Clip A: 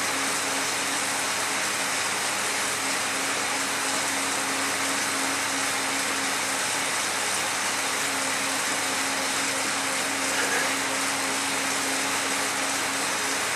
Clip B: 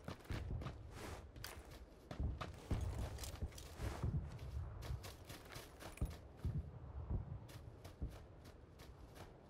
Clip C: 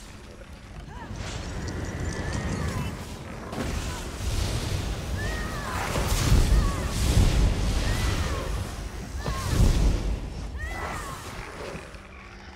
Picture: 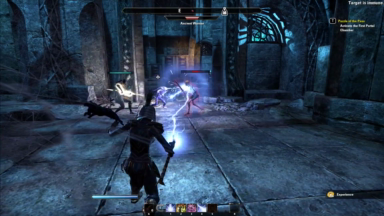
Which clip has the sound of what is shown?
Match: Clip C